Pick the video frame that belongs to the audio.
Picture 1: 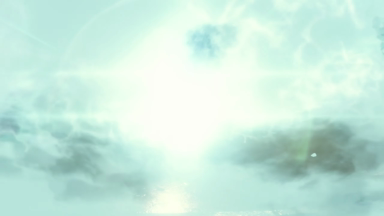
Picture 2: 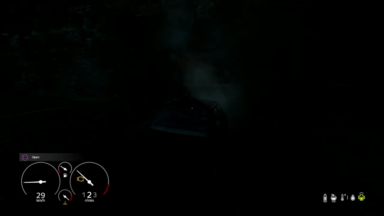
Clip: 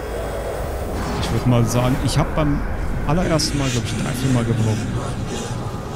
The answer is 1